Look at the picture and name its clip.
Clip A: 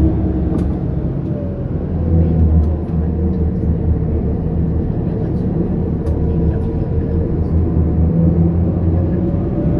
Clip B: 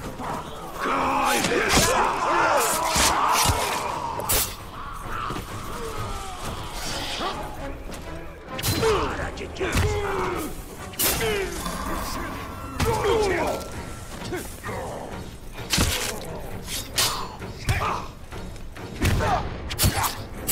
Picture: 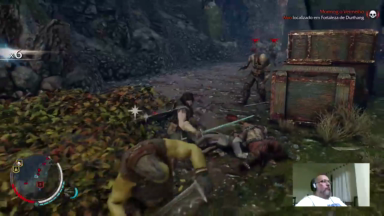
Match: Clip B